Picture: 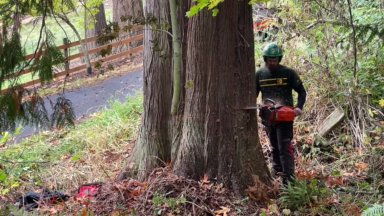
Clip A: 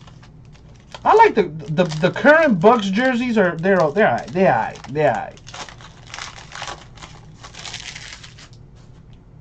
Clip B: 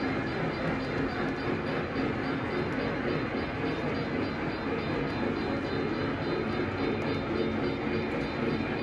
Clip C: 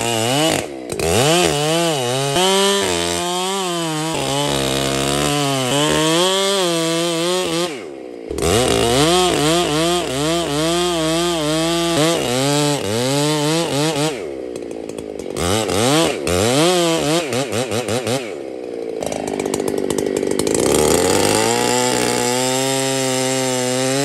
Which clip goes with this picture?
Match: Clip C